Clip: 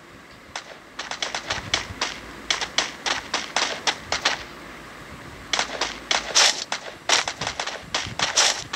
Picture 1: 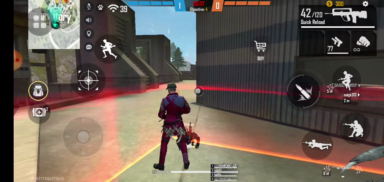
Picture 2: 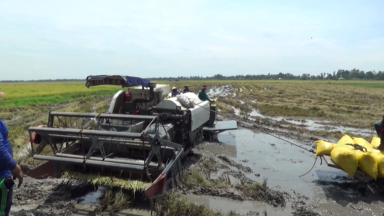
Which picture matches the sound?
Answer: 1